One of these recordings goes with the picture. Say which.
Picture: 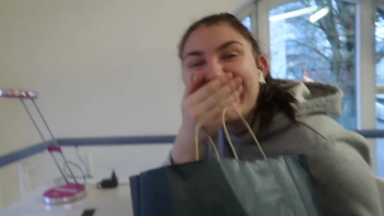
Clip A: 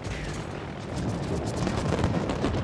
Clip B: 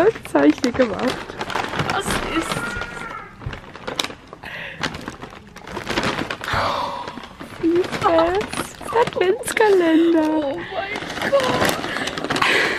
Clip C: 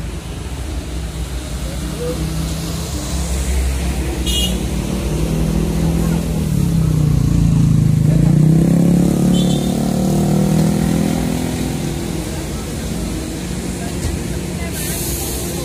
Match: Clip B